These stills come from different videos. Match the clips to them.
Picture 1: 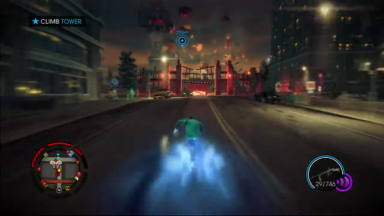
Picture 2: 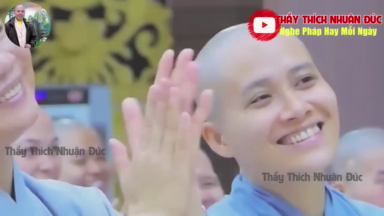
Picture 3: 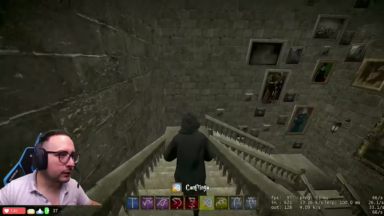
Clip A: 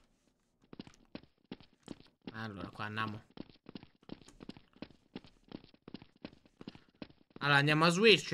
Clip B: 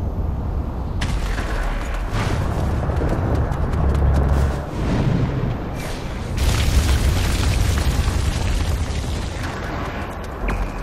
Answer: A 3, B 1